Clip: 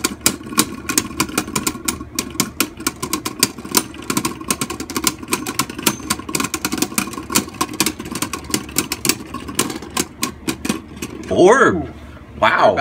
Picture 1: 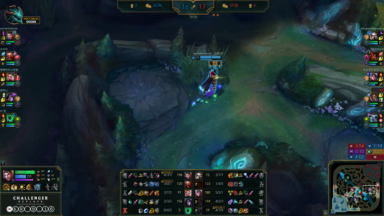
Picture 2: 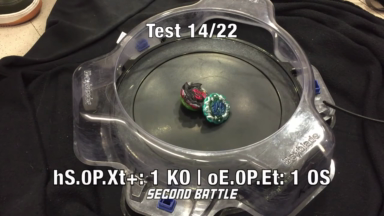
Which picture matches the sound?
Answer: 2